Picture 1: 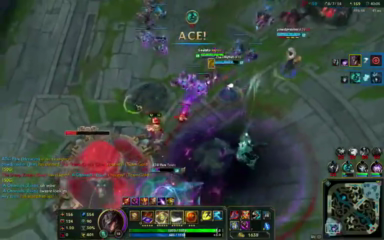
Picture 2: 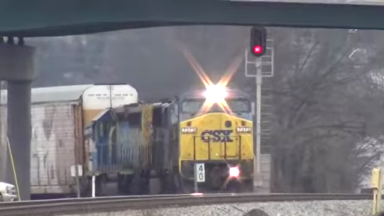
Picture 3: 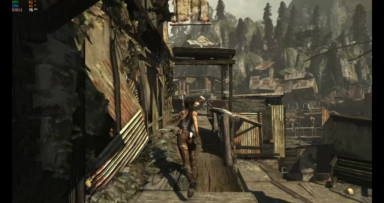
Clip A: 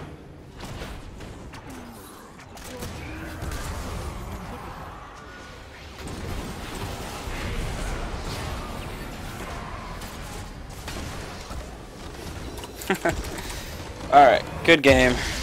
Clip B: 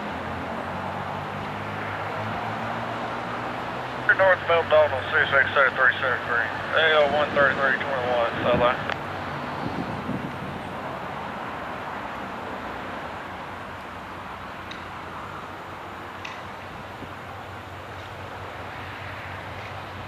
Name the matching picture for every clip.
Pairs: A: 1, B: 2